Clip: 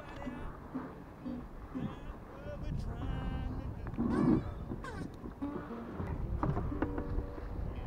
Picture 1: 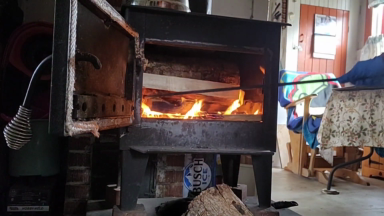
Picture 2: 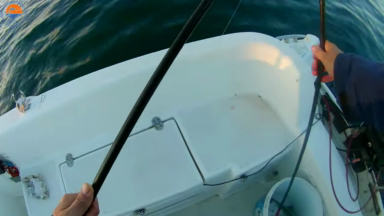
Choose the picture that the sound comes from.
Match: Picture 2